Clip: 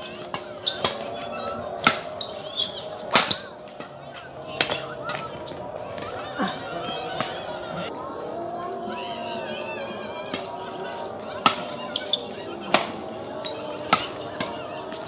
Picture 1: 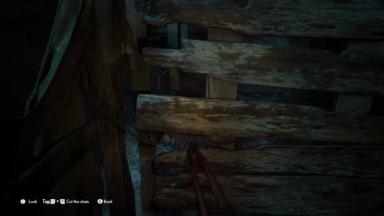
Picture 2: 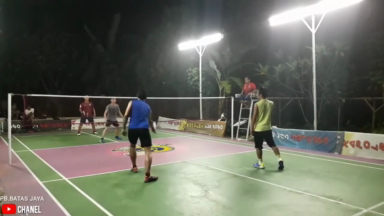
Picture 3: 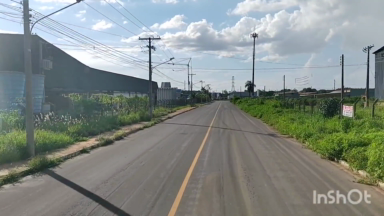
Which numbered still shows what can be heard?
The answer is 2